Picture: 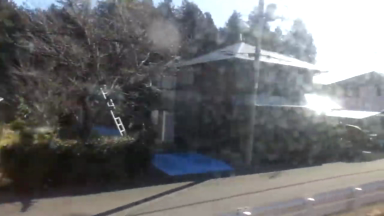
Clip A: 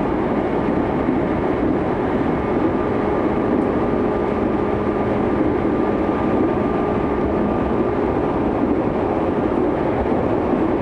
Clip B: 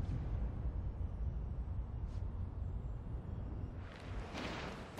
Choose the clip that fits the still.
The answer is A